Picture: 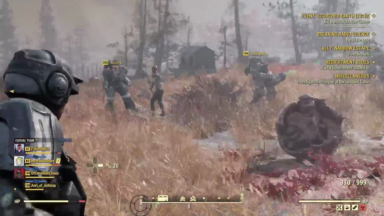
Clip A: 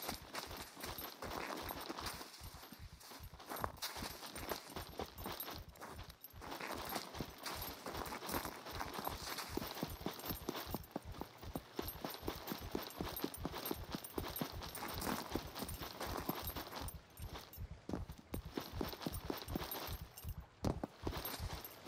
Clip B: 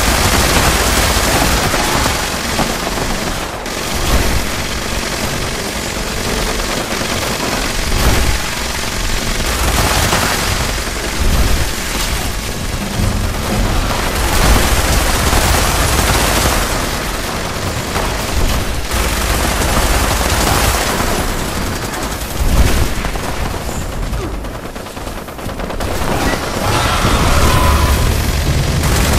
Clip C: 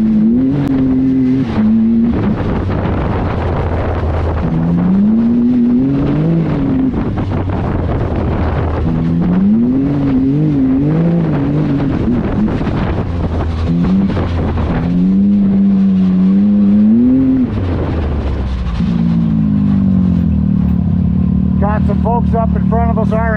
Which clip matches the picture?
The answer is B